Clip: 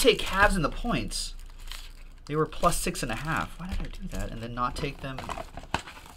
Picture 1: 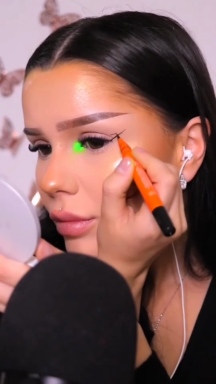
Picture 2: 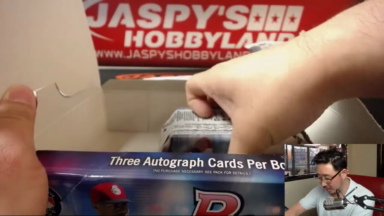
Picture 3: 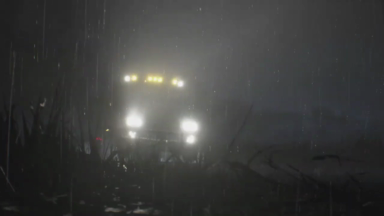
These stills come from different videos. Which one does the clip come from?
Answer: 2